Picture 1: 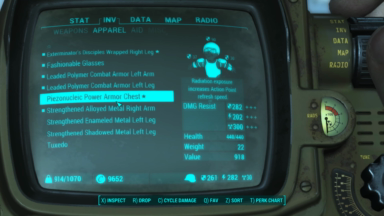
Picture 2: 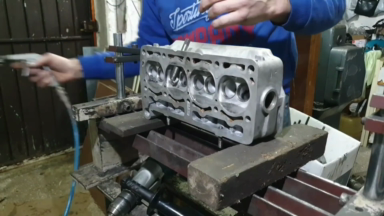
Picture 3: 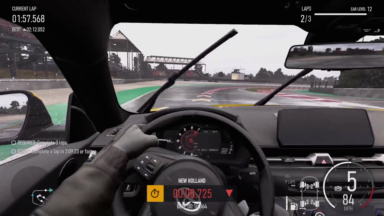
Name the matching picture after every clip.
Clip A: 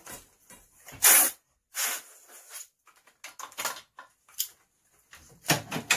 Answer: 2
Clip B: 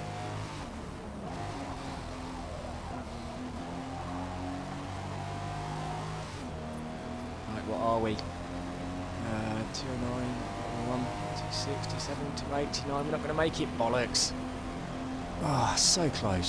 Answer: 3